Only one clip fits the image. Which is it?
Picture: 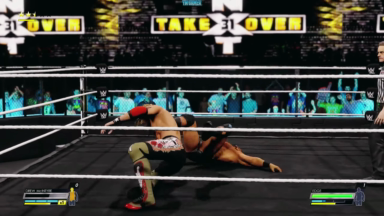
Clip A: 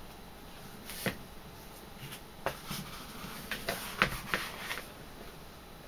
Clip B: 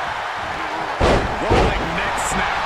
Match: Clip B